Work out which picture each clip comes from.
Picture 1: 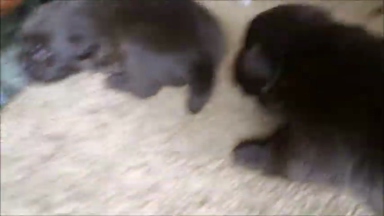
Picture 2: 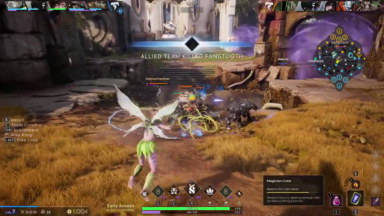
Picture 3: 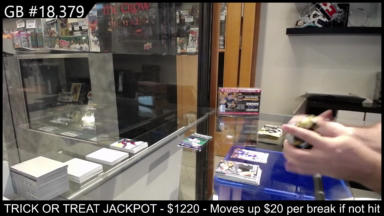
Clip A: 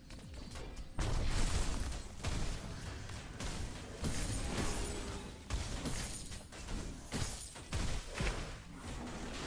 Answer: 2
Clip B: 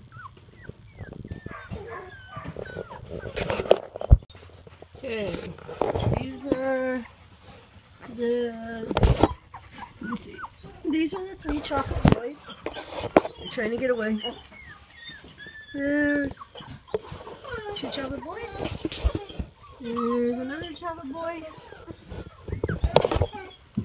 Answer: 1